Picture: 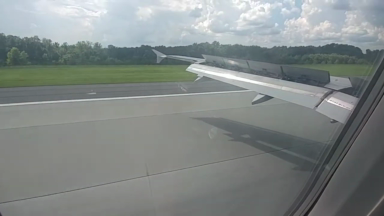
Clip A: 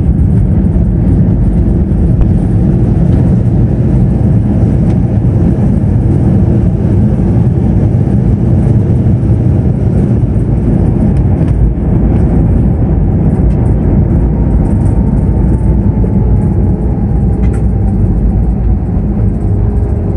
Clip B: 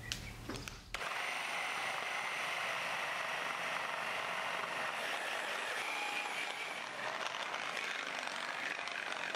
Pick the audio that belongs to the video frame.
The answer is A